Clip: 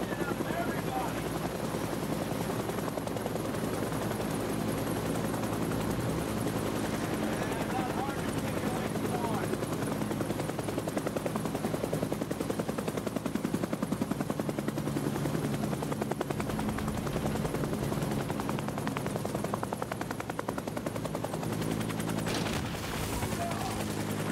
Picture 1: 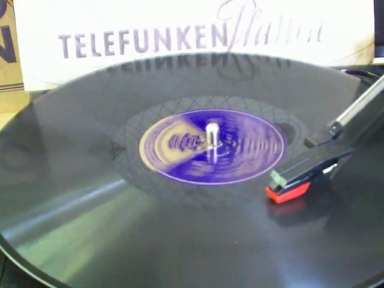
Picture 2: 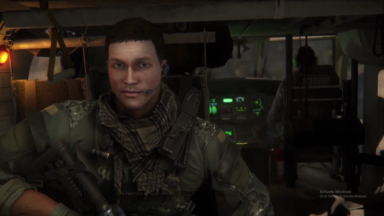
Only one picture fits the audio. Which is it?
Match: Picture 2